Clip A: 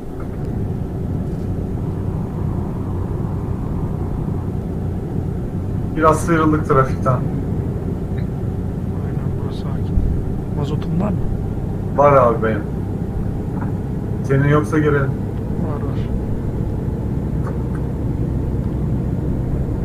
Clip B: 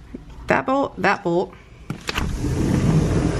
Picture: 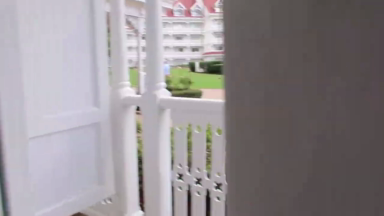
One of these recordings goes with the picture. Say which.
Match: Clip B